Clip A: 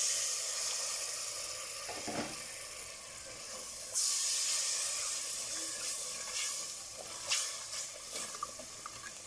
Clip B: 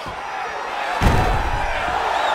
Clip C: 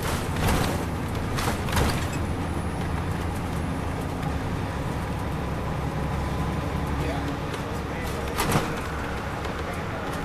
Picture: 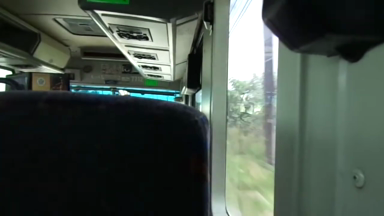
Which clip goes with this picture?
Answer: C